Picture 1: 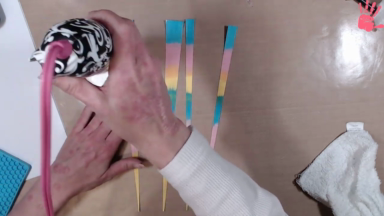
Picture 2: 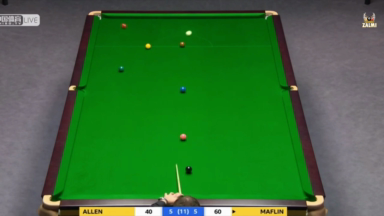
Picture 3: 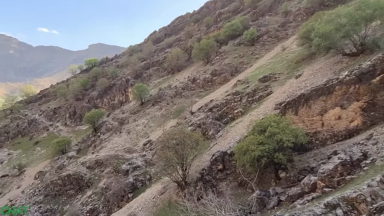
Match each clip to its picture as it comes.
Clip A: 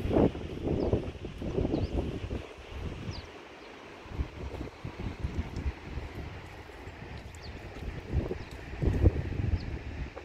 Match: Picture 3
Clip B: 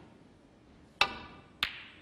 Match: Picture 2